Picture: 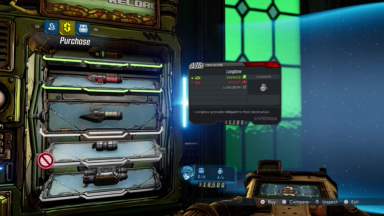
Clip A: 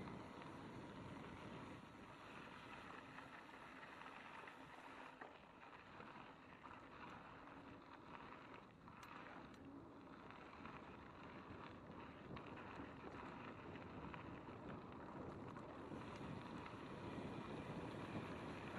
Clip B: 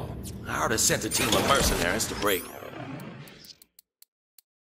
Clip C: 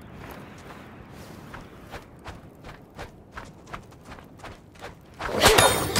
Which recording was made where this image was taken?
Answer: B